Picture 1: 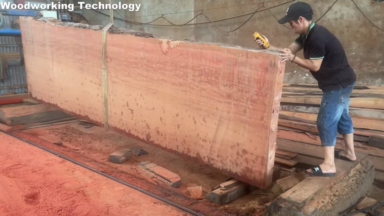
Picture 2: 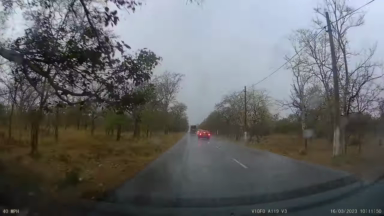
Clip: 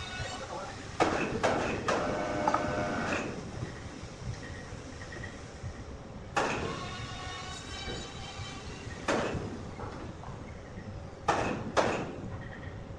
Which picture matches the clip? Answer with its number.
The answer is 1